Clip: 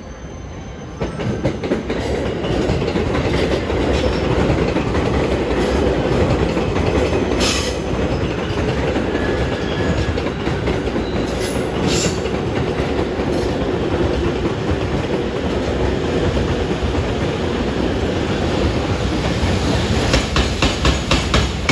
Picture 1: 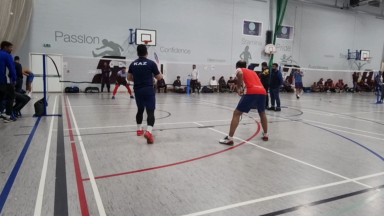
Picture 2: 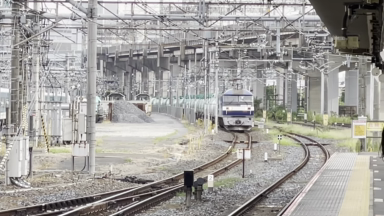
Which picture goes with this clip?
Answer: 2